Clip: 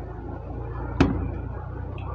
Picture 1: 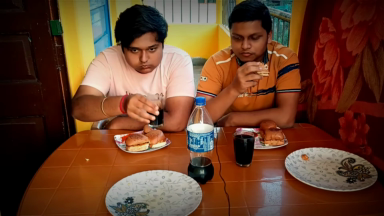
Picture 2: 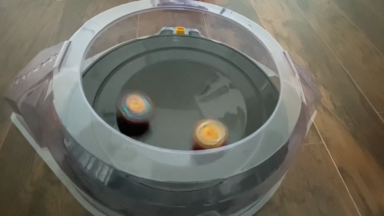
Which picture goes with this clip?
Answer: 1